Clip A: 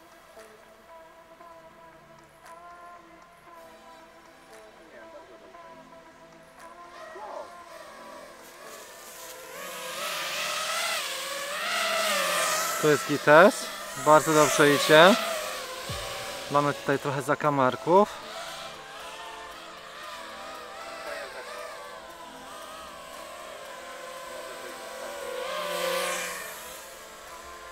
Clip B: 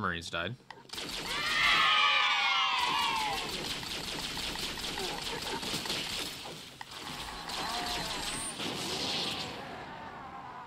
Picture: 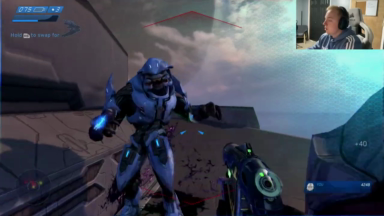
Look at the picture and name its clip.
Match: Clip B